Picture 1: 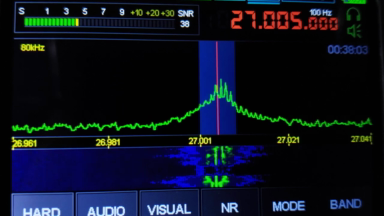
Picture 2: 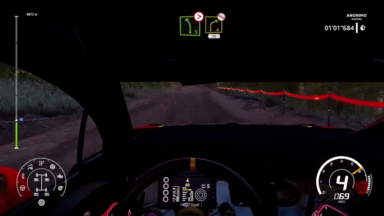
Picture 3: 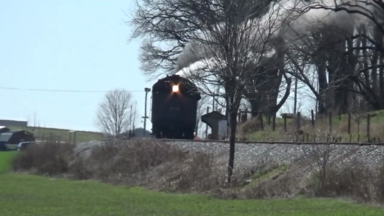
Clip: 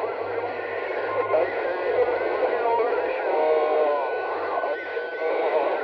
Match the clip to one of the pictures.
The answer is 1